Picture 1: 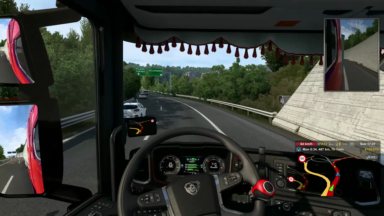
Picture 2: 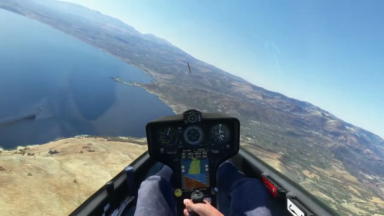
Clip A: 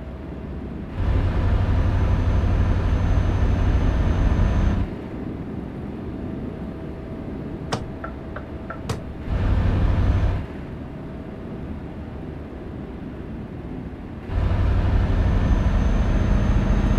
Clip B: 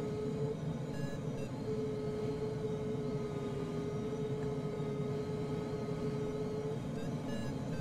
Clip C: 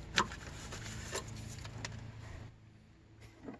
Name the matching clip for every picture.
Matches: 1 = A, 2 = B